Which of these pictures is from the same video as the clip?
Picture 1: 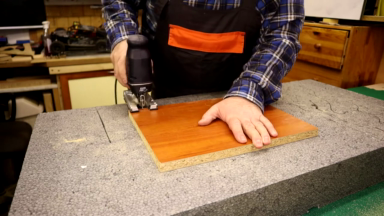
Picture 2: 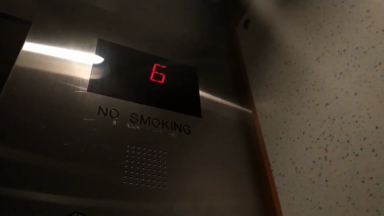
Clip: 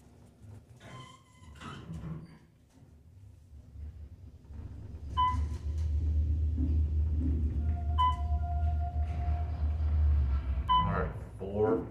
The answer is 2